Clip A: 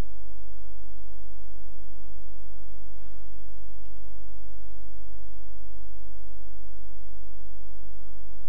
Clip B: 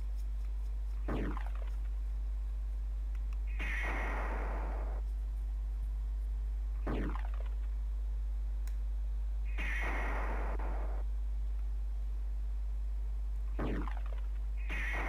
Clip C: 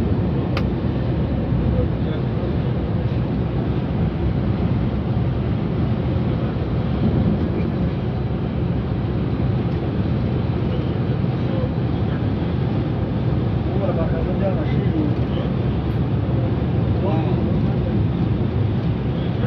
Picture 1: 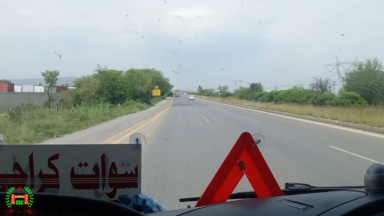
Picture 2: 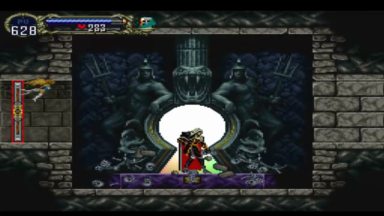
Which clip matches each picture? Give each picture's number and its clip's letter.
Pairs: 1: C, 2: B